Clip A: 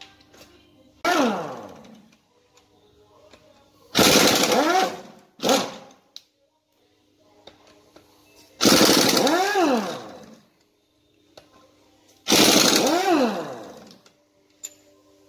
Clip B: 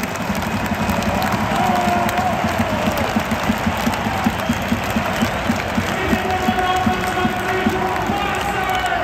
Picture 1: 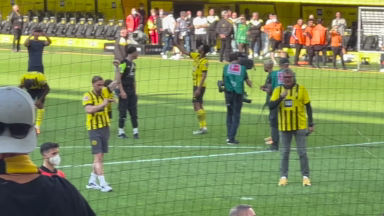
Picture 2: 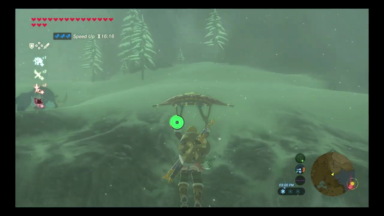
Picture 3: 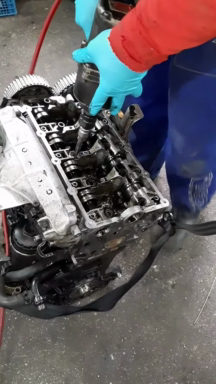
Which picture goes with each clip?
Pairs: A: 3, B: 1